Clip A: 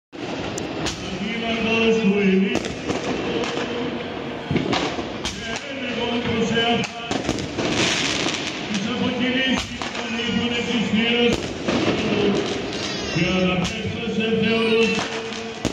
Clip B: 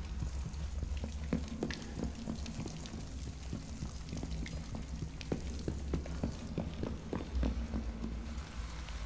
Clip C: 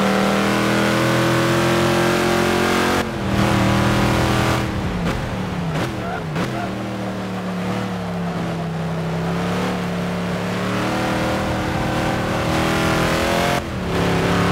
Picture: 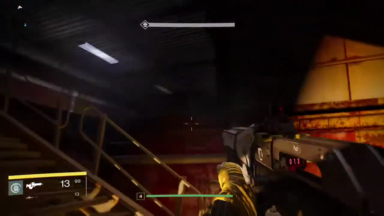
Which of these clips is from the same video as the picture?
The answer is B